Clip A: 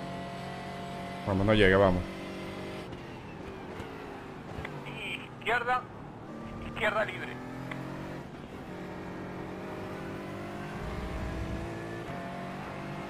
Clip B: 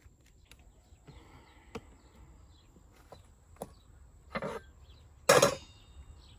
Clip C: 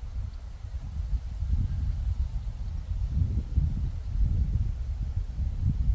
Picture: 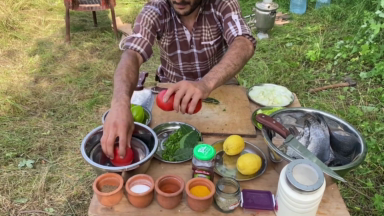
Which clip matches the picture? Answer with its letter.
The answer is B